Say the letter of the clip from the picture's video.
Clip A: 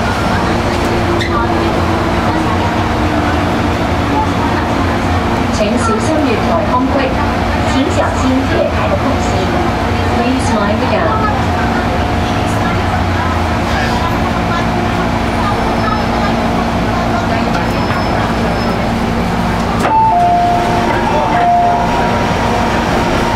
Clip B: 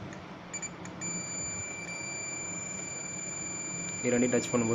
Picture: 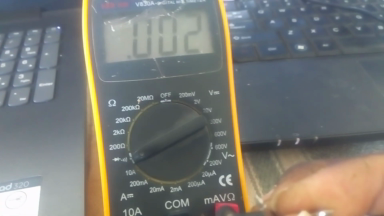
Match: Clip B